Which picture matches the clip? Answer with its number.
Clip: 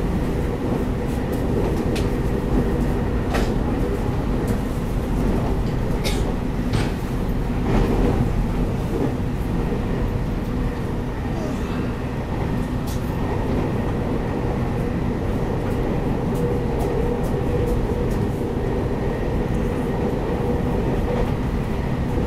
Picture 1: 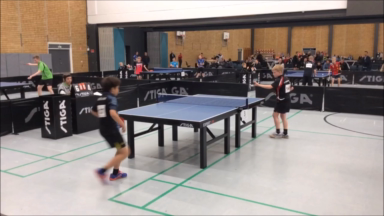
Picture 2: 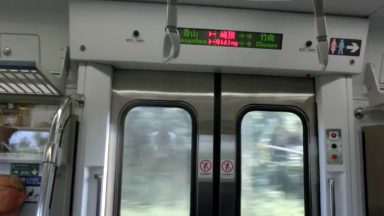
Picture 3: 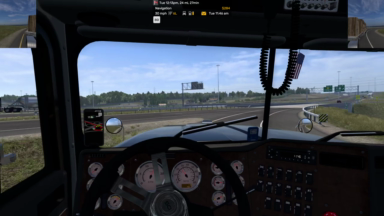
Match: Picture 2